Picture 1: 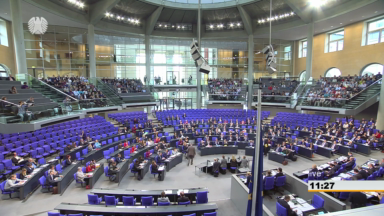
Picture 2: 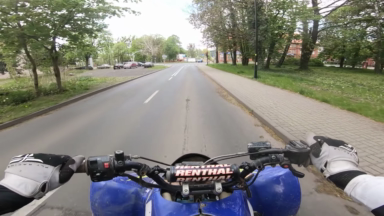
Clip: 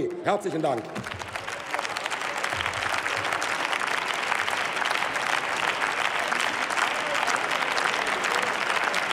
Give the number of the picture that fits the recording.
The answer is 1